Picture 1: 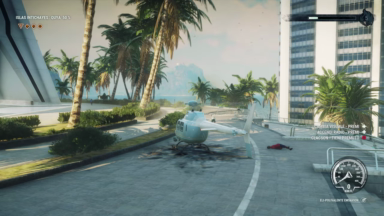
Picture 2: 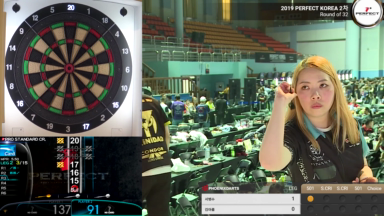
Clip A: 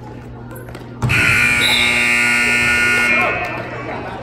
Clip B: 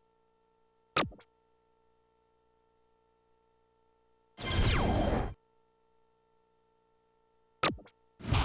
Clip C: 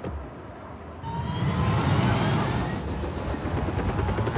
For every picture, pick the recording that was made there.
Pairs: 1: C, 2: B